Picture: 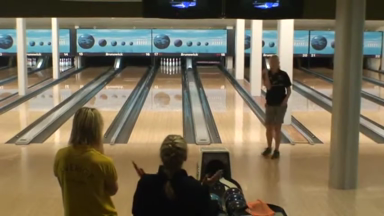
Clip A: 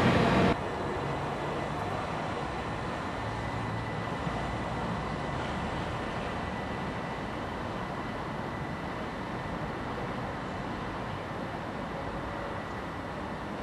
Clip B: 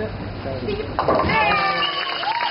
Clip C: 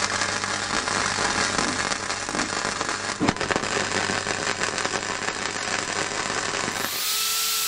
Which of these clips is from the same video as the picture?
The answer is B